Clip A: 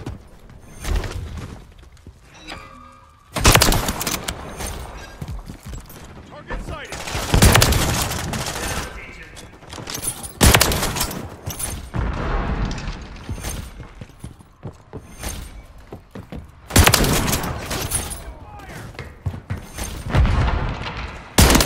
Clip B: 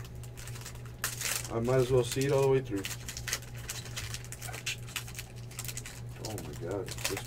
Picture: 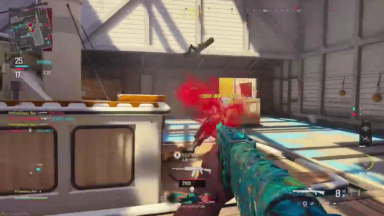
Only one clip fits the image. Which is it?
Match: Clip A